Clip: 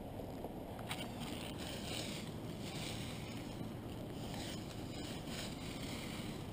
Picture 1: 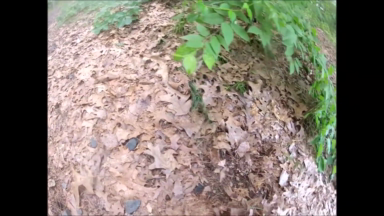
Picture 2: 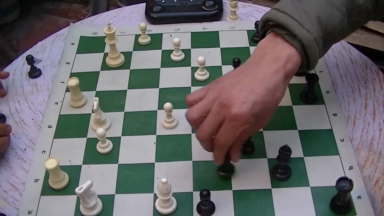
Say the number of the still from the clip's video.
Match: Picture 1